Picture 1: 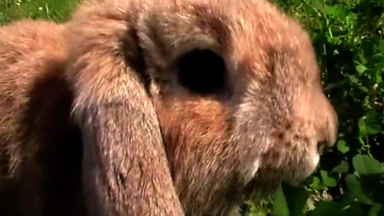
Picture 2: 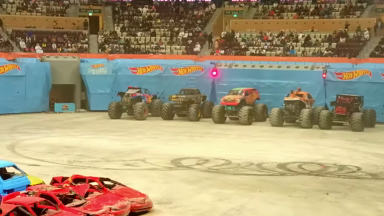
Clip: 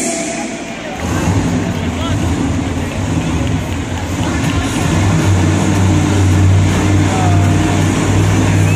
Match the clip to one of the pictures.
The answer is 2